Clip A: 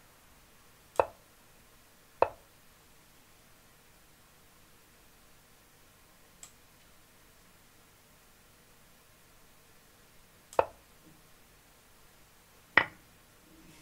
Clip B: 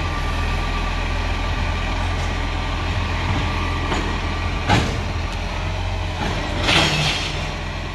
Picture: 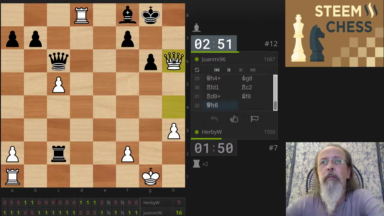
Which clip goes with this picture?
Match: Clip A